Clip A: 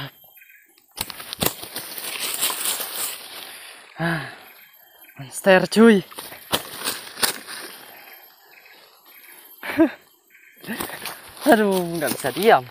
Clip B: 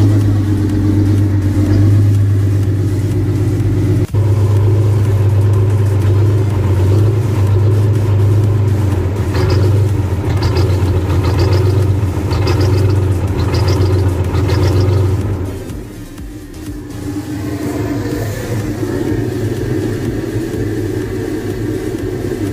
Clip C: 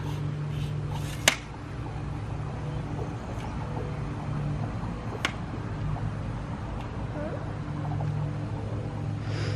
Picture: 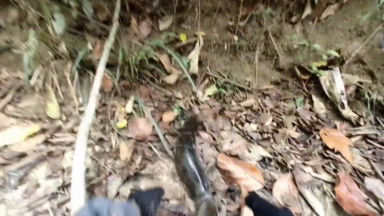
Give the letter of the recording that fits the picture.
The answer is A